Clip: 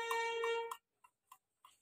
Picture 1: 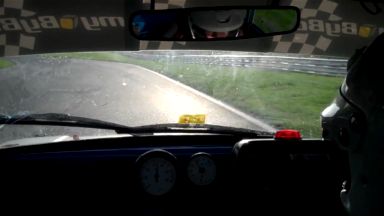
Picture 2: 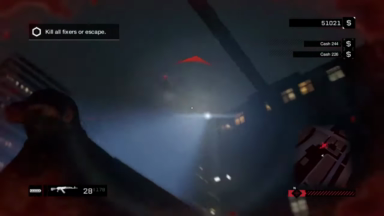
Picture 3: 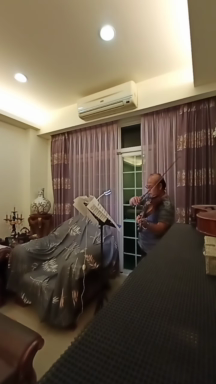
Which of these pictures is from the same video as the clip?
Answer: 3